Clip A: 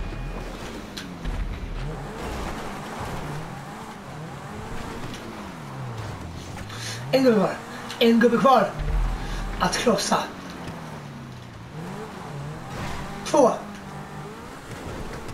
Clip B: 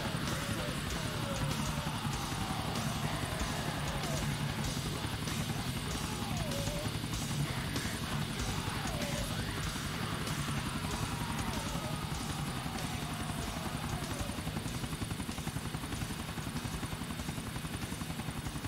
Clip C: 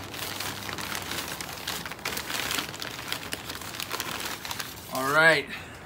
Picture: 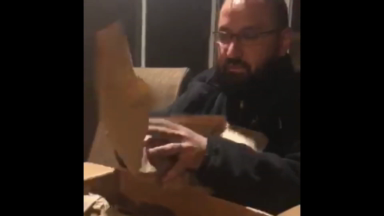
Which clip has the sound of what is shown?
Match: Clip C